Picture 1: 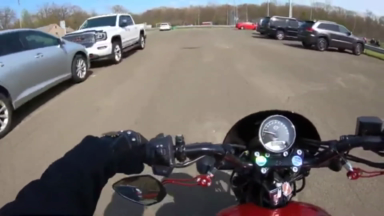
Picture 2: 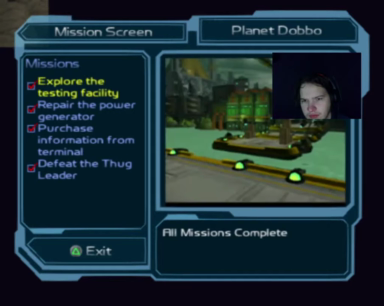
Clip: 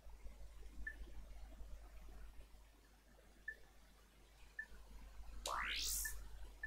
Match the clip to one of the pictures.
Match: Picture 2